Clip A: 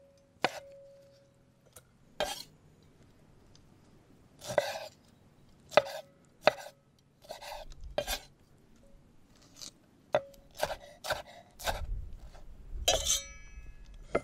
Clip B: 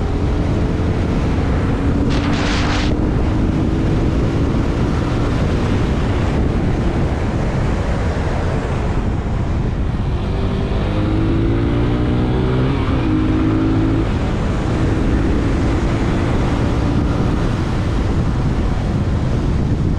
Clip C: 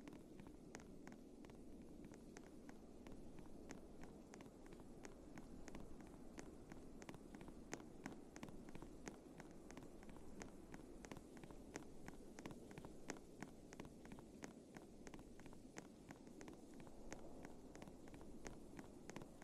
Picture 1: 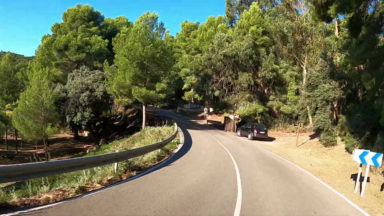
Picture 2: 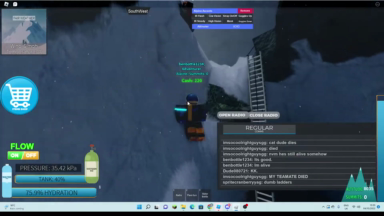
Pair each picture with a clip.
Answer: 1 B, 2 C